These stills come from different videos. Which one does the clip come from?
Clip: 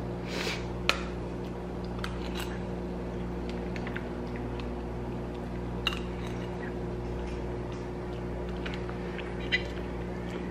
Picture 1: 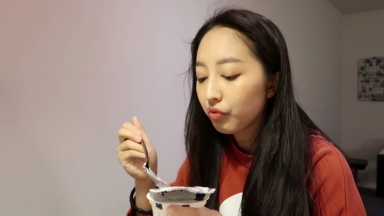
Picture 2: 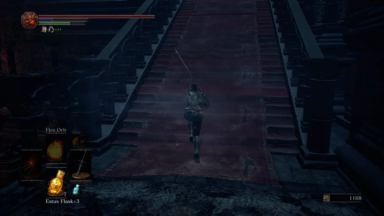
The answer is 1